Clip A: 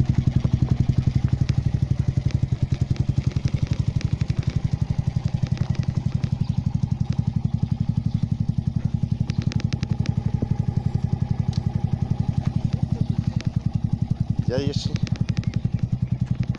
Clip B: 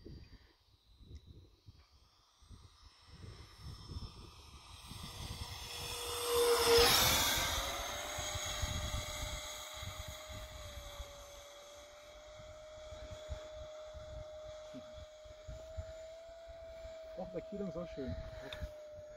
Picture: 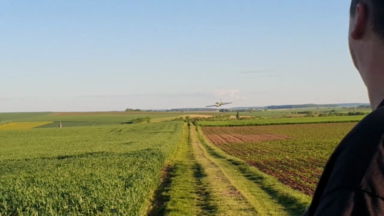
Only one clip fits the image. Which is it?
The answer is B